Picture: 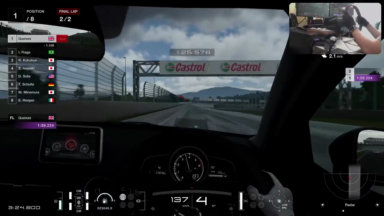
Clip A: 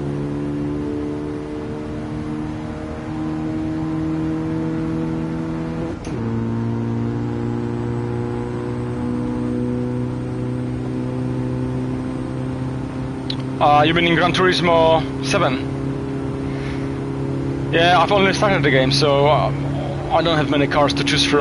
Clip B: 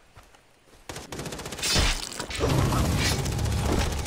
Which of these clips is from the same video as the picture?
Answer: A